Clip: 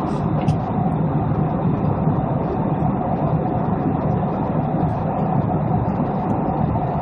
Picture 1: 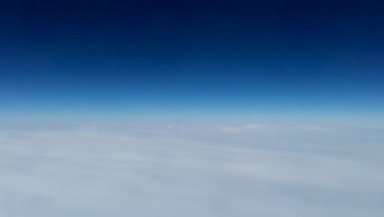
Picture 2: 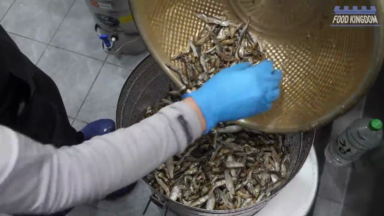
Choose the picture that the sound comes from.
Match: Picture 1